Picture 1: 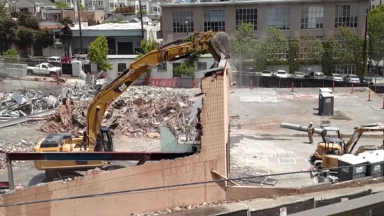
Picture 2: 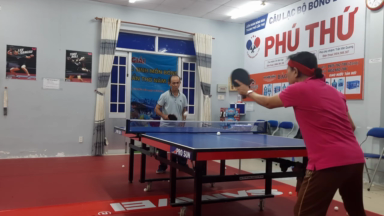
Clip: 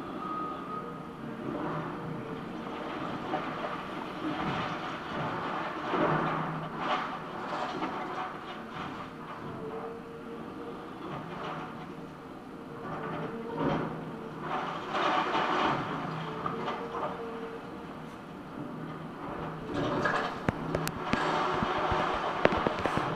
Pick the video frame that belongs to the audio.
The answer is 1